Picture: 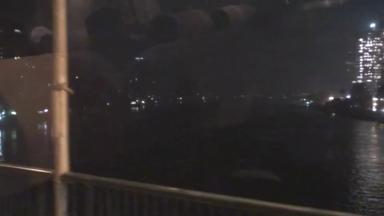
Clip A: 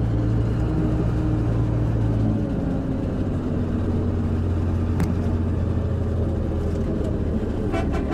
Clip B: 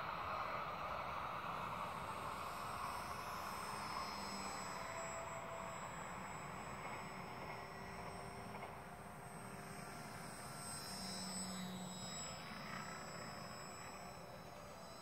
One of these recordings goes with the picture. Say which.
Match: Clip A